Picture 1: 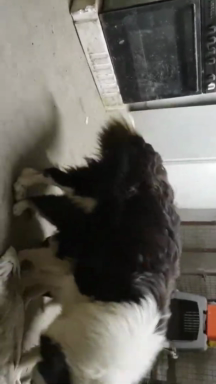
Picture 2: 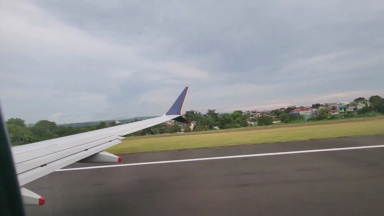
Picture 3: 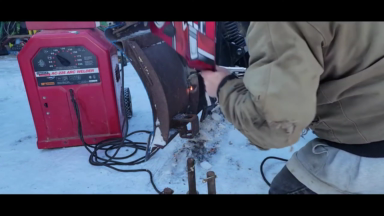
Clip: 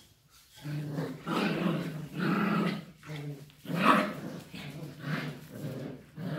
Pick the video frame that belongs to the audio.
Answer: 1